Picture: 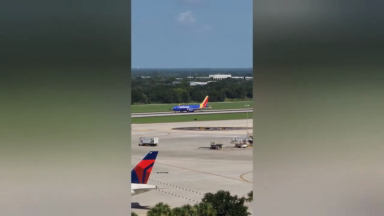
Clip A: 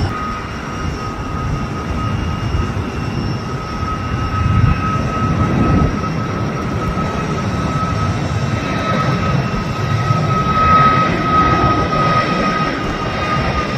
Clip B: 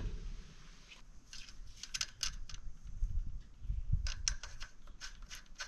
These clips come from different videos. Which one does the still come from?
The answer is A